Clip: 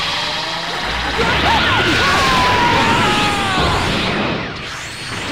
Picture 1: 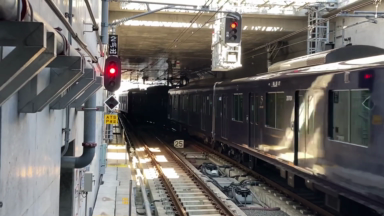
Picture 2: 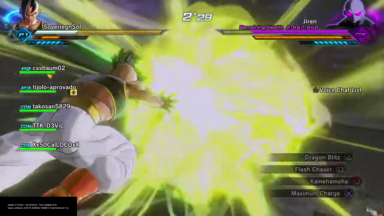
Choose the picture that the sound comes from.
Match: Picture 2